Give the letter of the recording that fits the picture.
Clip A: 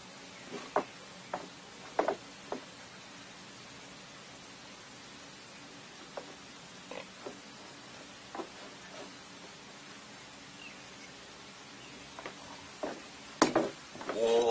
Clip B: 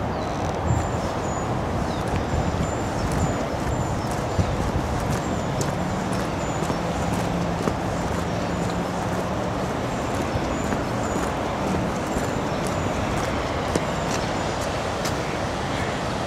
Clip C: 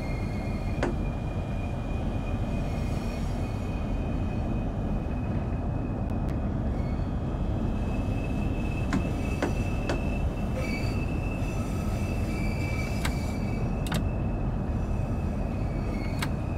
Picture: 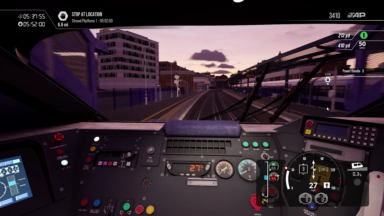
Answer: C